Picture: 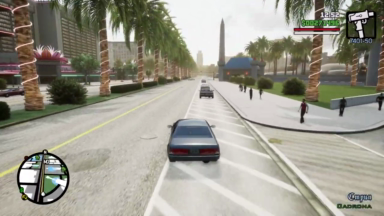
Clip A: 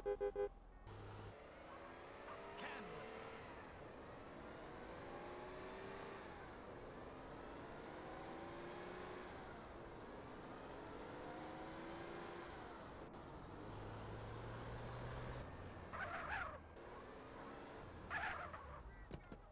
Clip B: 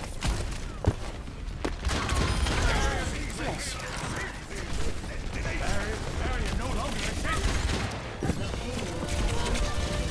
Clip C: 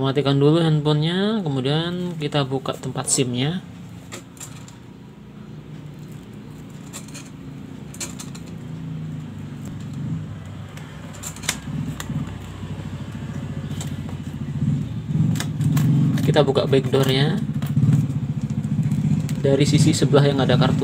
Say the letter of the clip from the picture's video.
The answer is A